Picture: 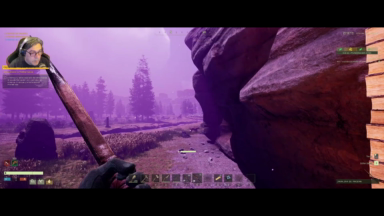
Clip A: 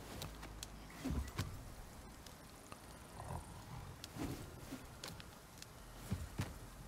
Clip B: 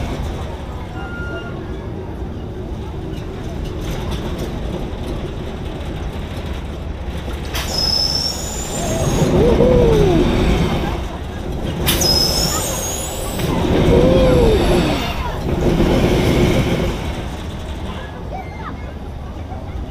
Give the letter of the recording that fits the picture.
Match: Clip A